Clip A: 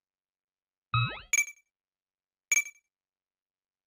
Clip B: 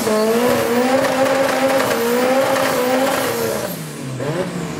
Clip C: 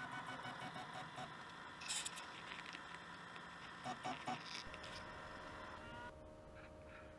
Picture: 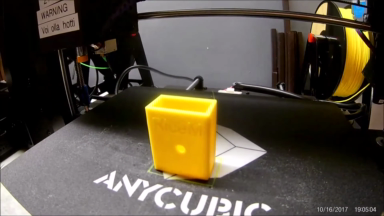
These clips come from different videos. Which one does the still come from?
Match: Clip C